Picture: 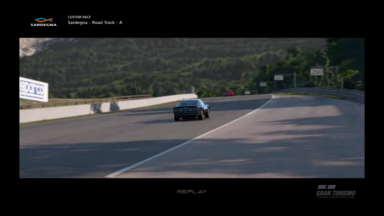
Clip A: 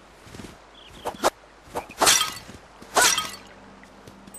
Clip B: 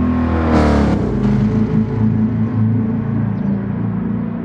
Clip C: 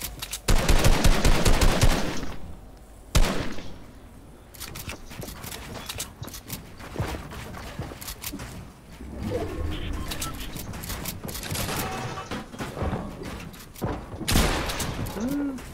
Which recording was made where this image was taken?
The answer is B